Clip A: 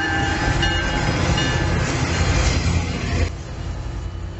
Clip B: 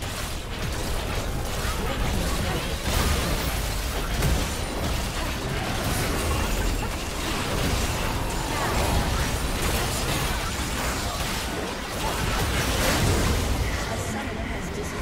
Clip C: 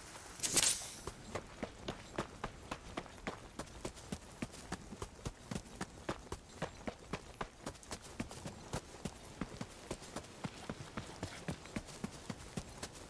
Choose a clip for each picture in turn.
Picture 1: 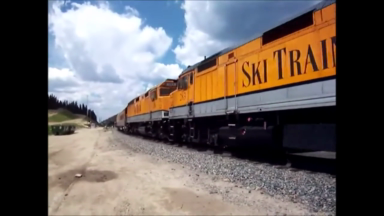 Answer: A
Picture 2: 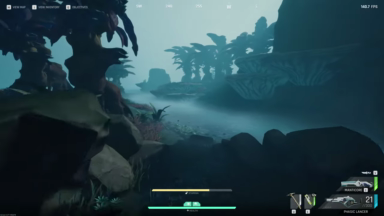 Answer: C